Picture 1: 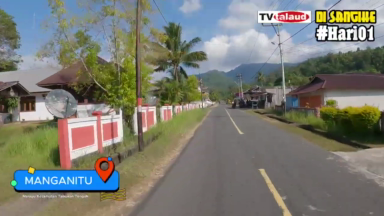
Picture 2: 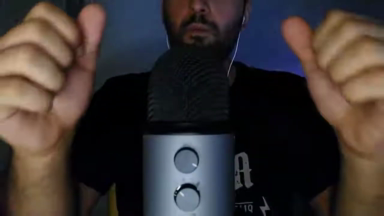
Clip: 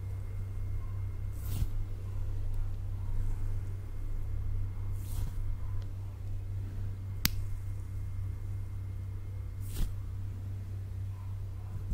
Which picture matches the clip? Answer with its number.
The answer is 2